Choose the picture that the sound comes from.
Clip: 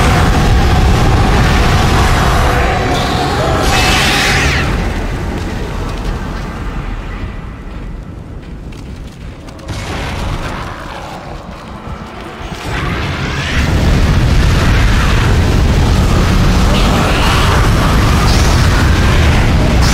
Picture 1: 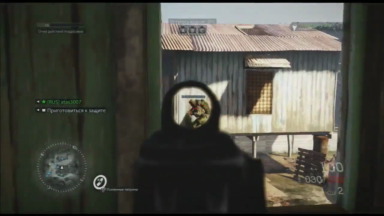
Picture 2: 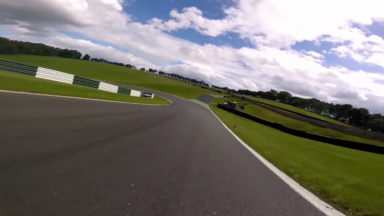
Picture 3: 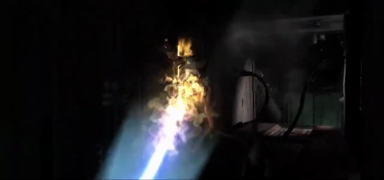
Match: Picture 3